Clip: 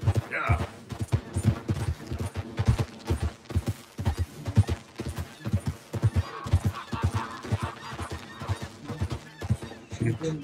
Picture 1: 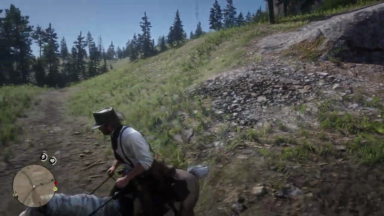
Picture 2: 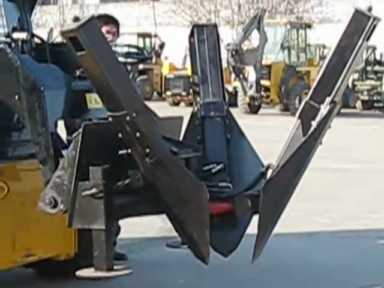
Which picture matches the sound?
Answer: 1